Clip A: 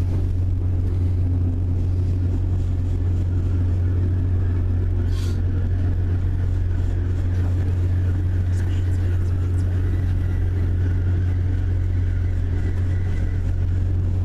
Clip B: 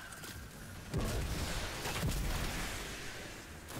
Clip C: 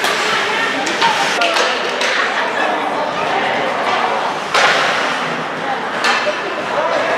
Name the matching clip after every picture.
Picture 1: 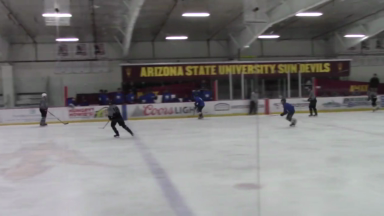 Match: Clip C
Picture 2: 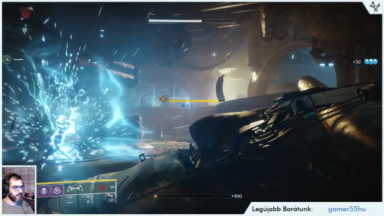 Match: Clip B